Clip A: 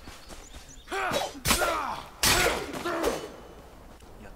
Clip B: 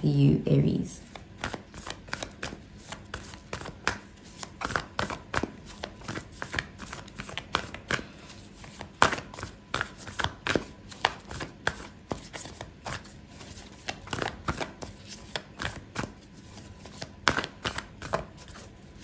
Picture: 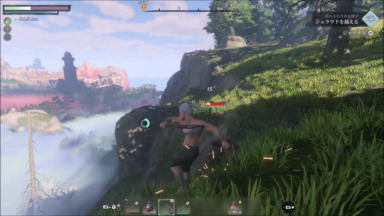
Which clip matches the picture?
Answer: A